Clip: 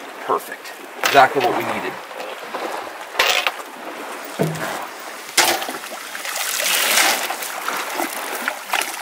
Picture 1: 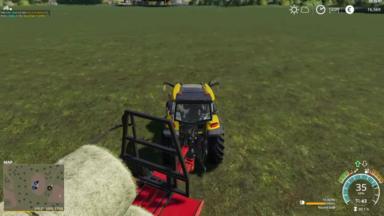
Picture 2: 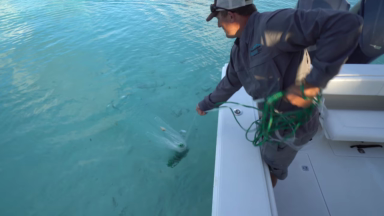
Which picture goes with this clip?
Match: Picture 2